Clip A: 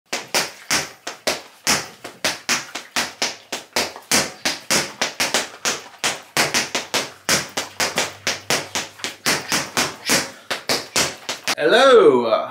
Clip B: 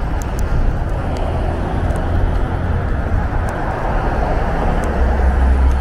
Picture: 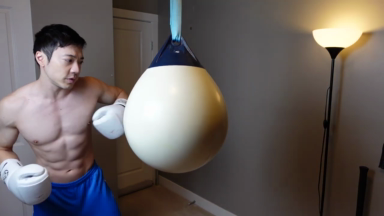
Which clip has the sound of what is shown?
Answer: A